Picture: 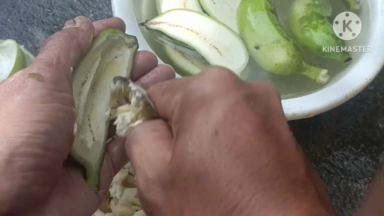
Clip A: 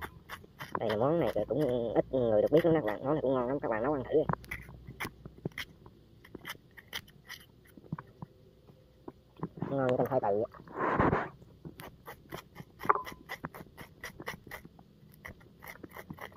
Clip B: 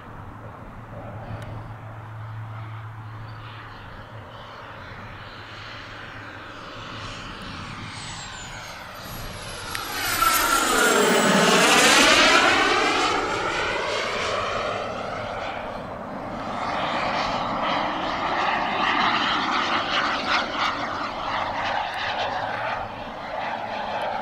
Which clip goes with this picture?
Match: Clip A